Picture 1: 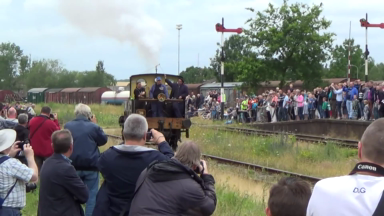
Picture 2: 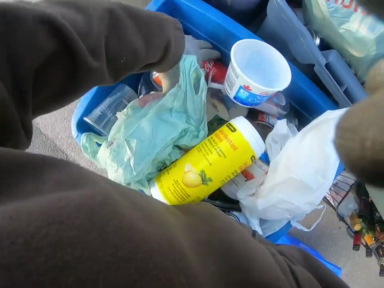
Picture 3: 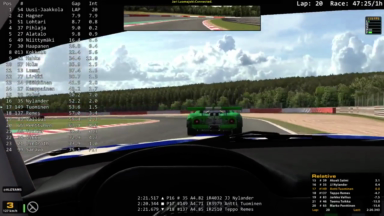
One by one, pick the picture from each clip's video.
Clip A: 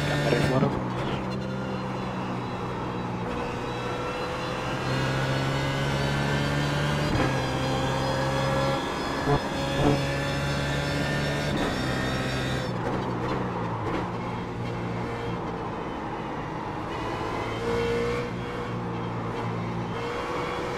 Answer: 3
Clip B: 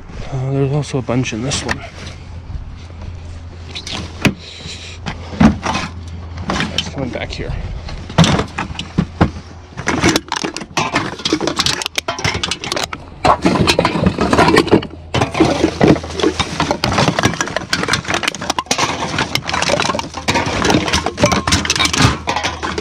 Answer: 2